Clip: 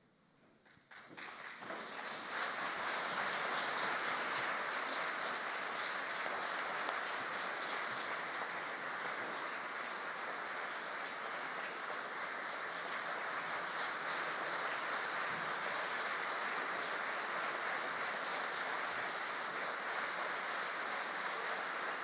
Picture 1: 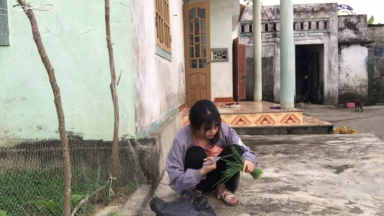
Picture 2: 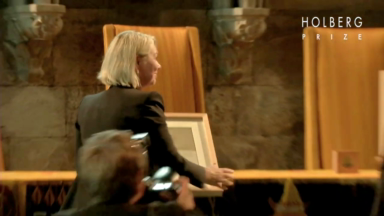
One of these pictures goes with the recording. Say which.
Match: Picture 2